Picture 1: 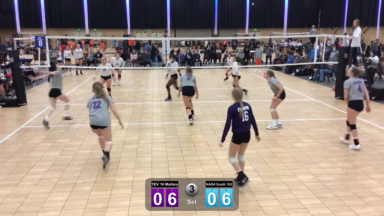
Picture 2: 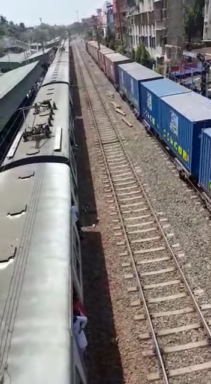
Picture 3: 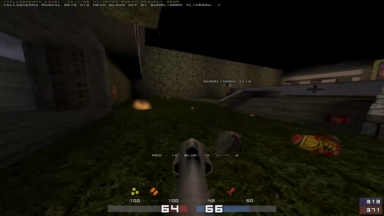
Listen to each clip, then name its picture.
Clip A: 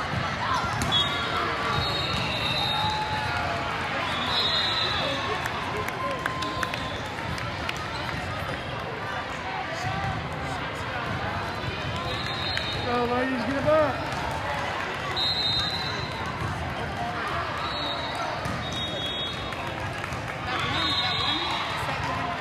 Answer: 1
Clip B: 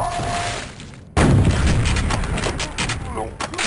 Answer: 3